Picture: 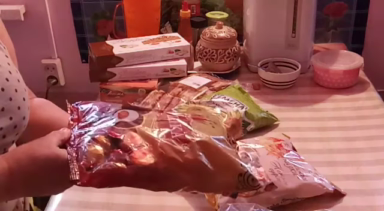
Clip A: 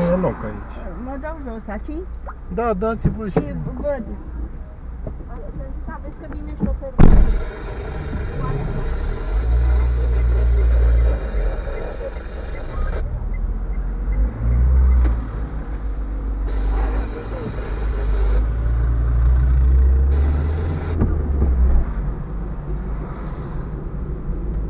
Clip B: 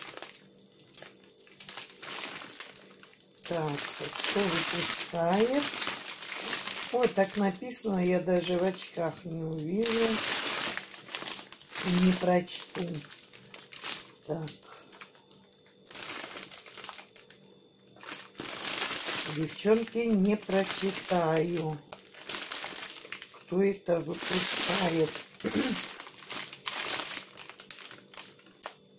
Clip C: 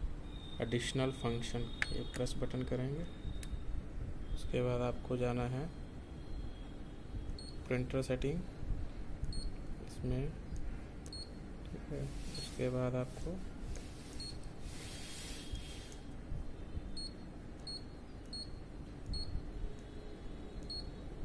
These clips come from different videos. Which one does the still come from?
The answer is B